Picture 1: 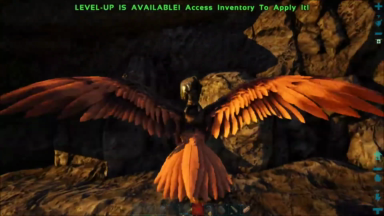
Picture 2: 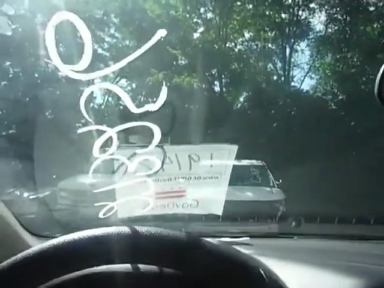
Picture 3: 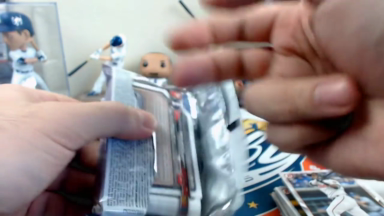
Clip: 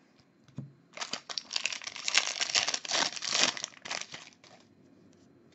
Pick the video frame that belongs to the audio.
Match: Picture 3